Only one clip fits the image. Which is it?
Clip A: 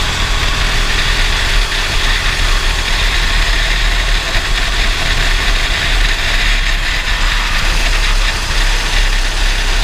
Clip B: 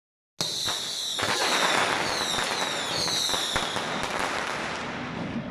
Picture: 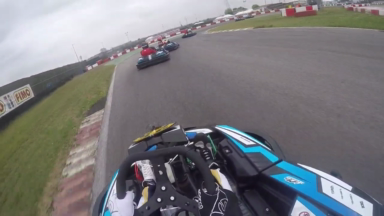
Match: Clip A